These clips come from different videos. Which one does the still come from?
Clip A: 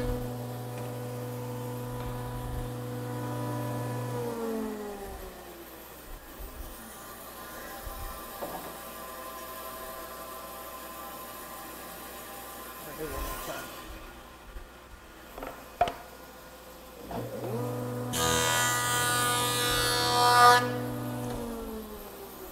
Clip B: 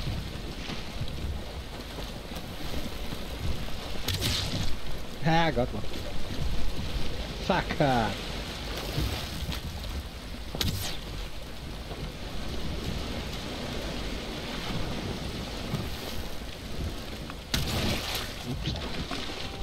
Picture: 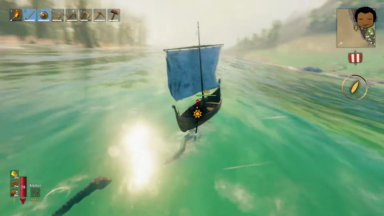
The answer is B